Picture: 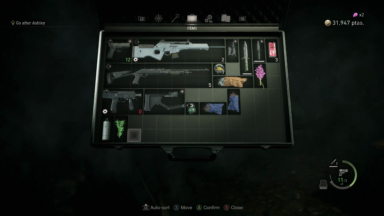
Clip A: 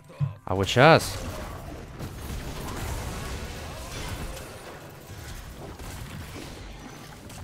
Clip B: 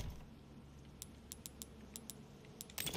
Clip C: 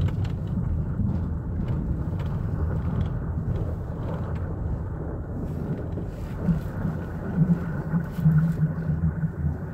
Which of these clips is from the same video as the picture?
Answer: B